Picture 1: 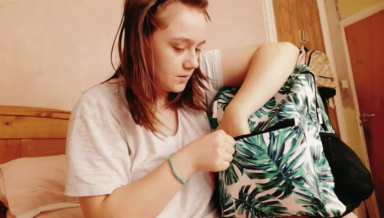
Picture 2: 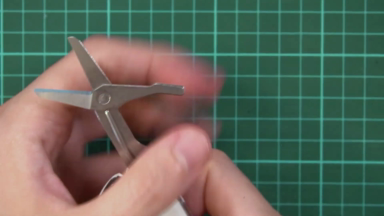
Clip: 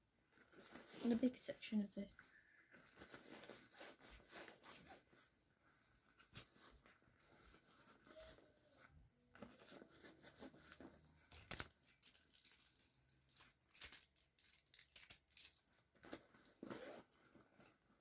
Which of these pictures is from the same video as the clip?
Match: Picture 1